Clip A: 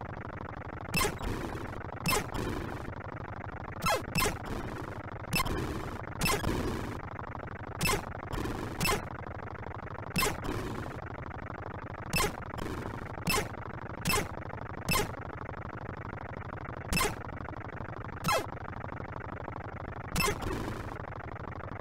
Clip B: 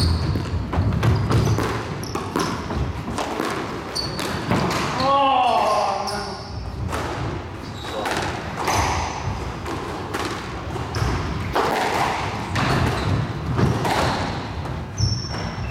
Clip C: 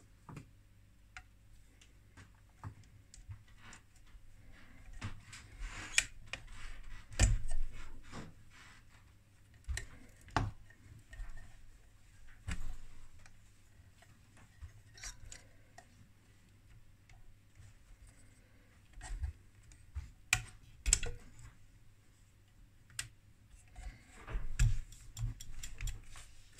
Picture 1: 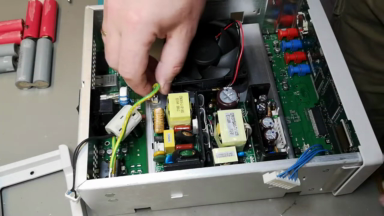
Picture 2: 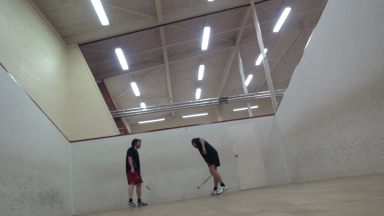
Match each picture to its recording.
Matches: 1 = C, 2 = B